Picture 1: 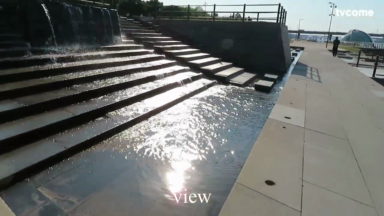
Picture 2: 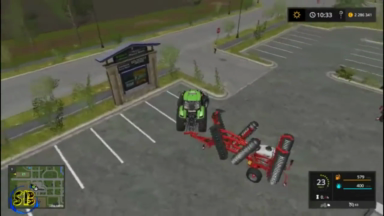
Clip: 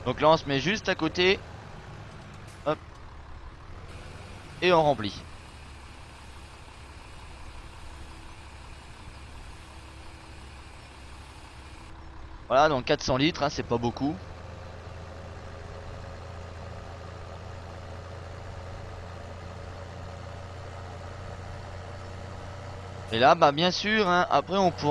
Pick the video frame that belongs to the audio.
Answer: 2